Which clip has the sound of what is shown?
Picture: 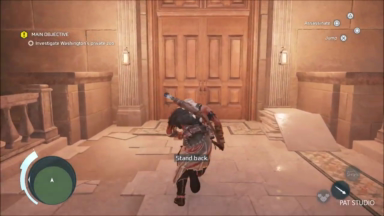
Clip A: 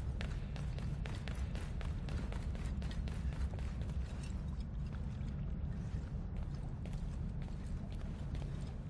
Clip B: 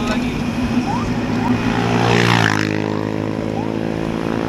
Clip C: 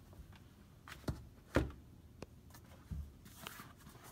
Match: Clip A